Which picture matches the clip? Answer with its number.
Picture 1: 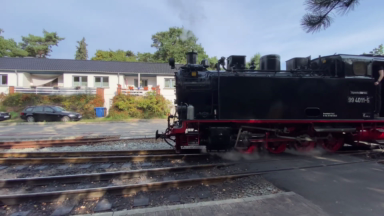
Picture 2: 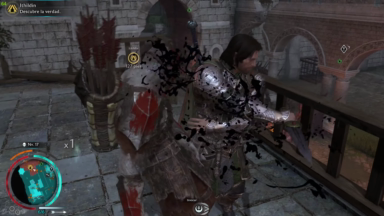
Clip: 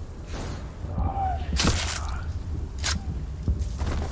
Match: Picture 2